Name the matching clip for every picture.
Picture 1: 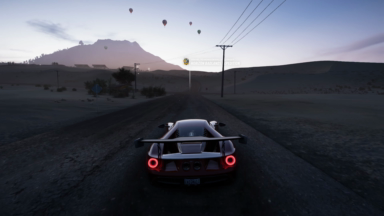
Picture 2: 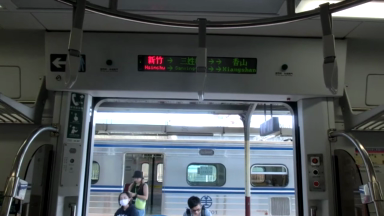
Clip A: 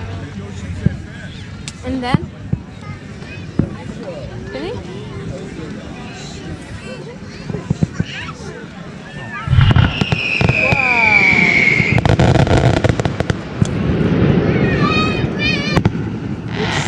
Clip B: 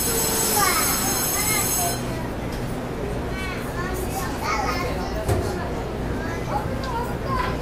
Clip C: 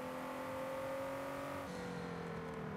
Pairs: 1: C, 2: B